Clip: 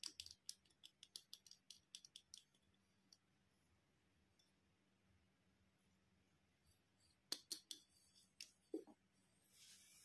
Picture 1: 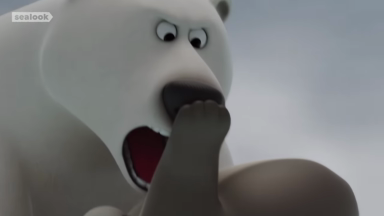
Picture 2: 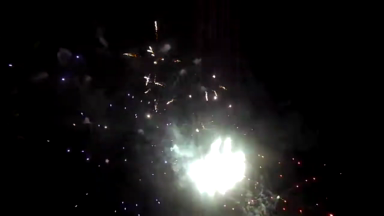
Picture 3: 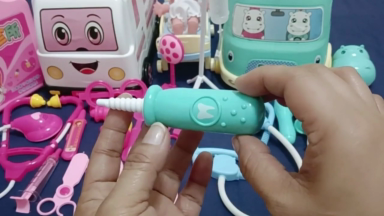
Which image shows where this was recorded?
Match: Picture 3